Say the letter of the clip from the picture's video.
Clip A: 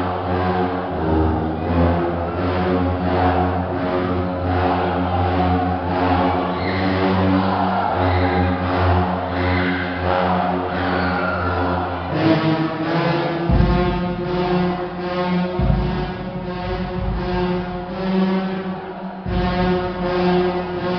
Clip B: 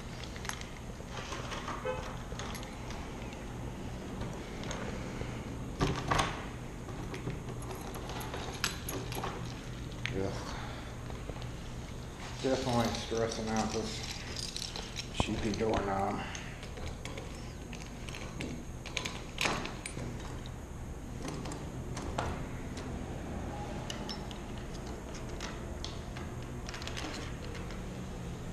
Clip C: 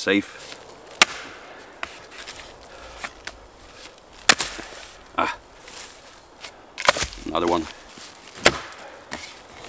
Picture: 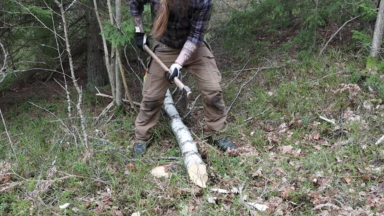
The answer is C